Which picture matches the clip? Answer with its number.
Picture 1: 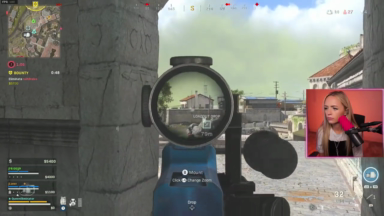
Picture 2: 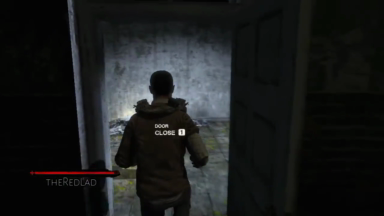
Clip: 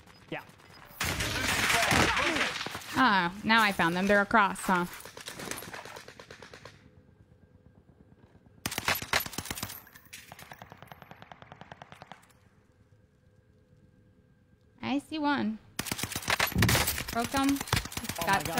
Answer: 1